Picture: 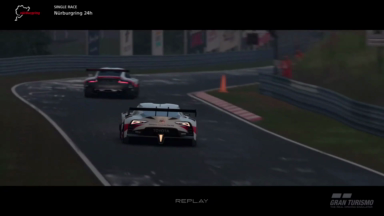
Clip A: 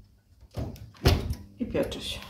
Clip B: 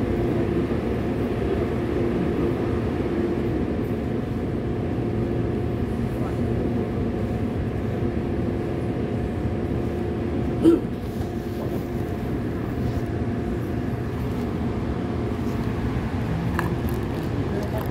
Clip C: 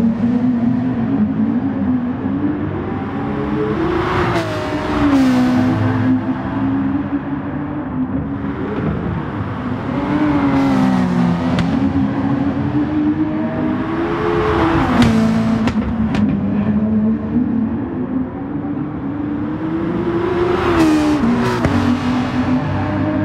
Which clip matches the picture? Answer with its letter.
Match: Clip C